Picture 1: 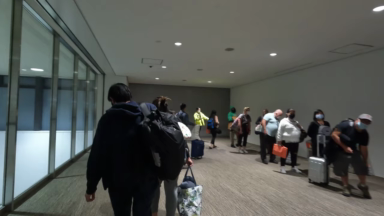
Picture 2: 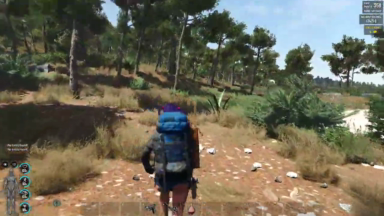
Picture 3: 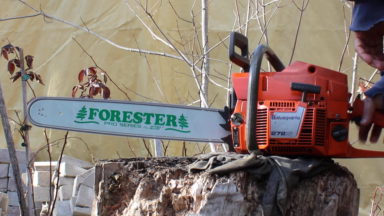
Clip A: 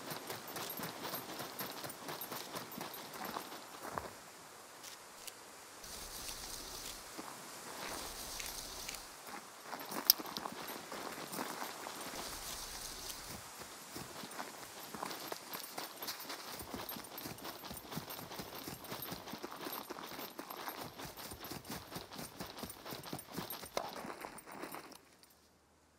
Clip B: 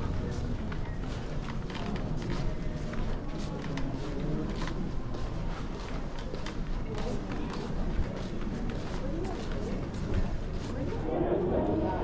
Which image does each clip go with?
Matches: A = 2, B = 1